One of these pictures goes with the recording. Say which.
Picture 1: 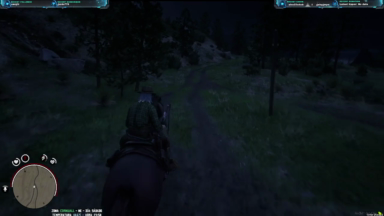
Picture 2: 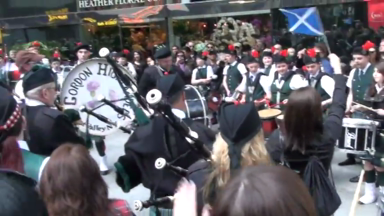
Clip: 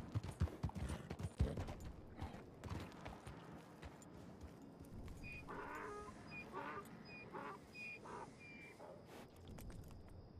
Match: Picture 1